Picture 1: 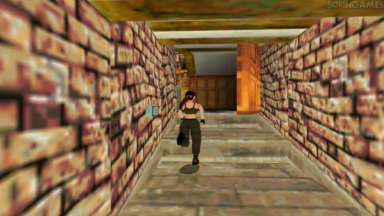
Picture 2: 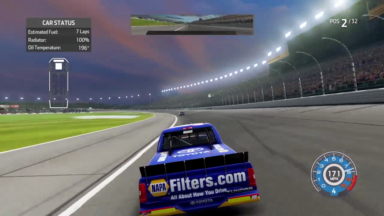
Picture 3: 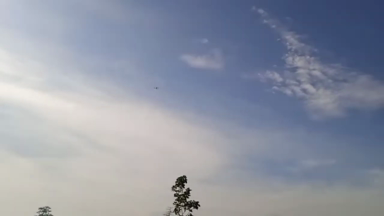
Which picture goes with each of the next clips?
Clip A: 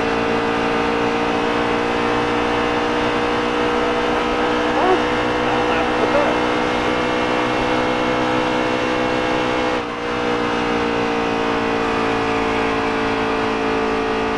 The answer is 2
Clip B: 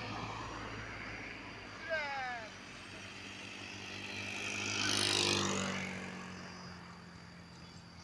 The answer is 3